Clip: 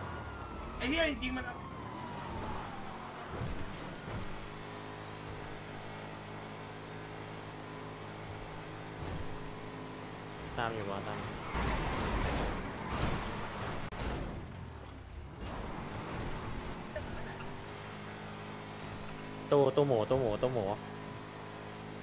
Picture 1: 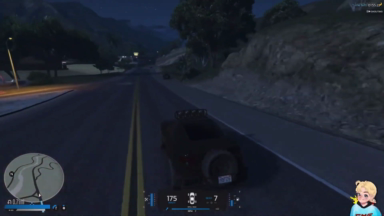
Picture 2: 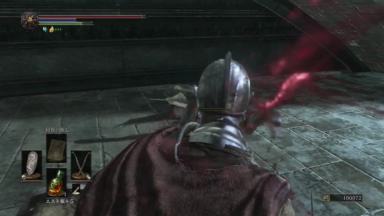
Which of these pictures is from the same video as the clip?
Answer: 1